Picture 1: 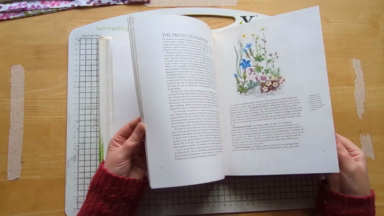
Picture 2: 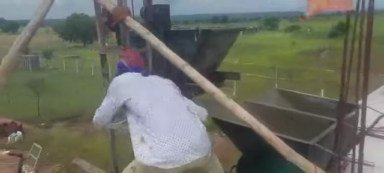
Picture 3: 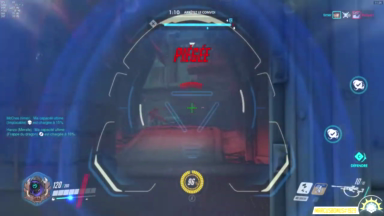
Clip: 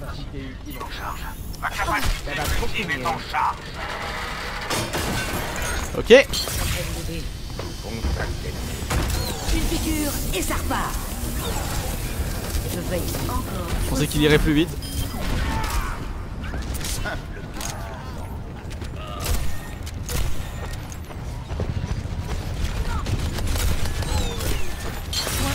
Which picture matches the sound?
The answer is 3